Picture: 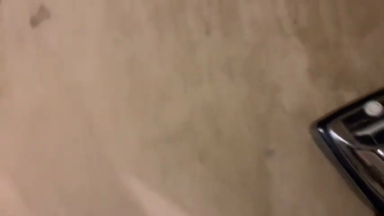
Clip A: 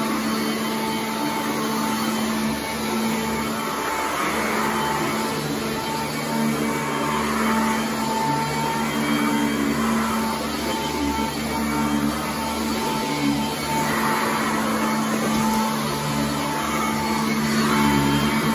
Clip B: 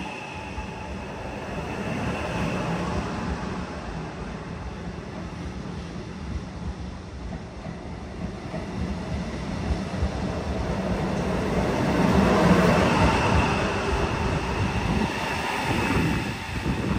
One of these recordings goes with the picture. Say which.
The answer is A